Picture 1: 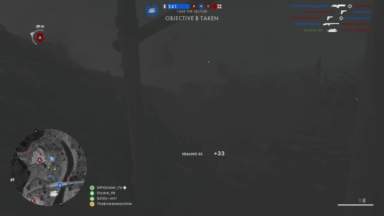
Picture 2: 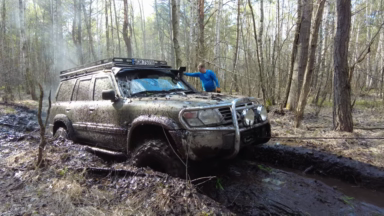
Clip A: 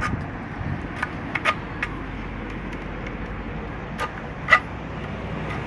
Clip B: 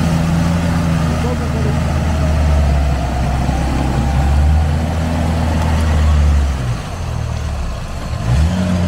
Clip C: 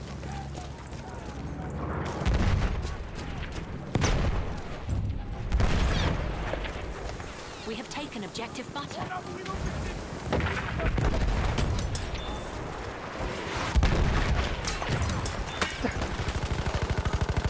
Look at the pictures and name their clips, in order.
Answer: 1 C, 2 B